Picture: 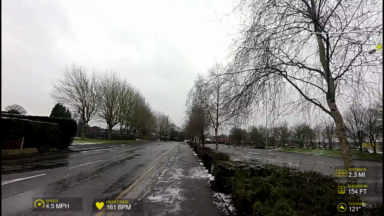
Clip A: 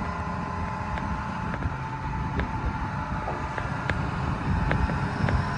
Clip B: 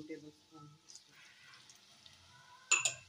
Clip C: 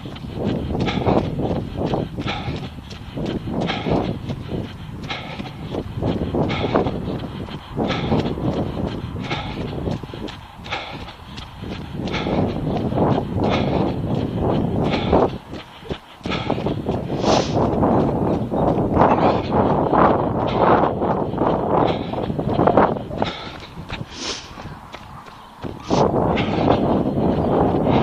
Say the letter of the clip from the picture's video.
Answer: C